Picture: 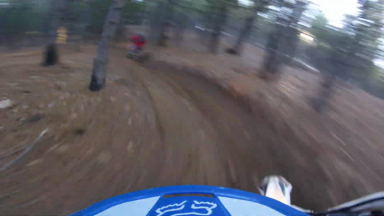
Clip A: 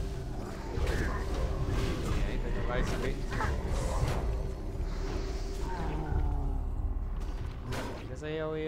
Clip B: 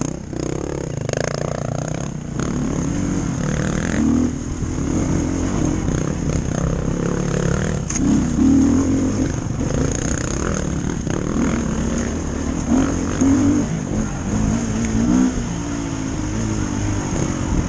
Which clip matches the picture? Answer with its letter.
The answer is B